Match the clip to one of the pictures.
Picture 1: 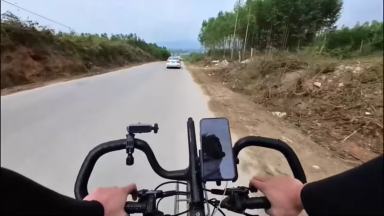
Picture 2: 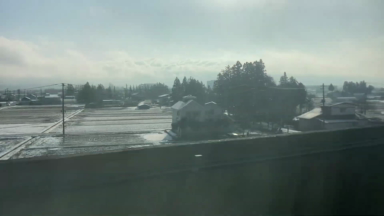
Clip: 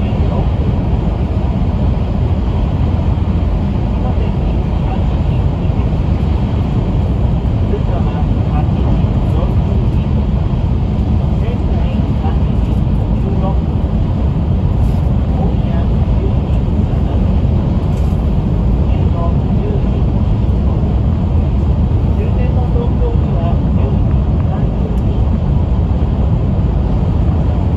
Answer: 2